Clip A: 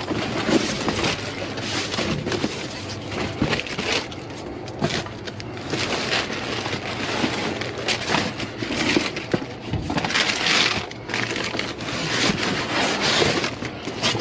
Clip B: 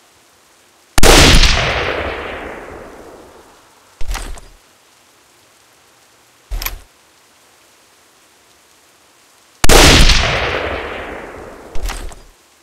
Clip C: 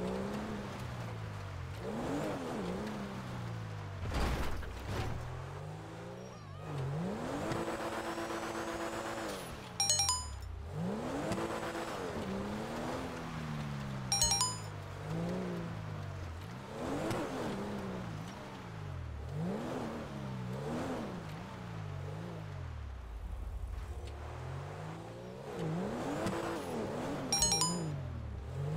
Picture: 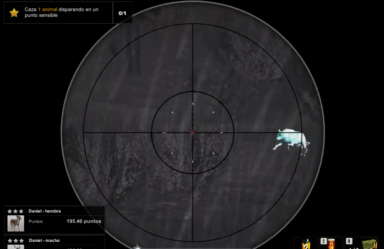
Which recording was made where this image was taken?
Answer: B